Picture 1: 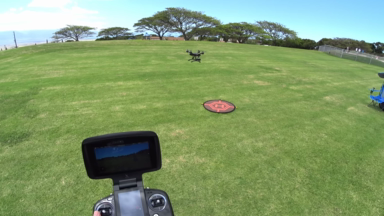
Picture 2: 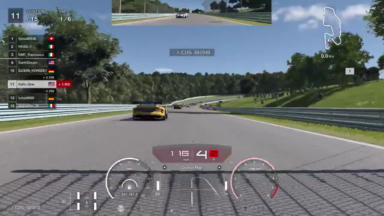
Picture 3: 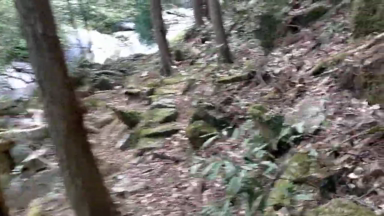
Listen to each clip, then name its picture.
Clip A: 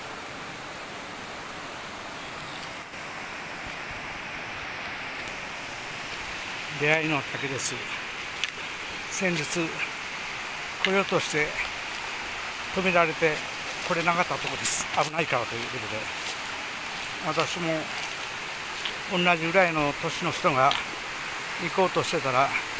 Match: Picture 3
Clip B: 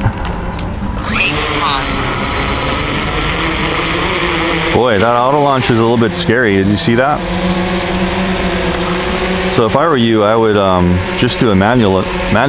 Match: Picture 1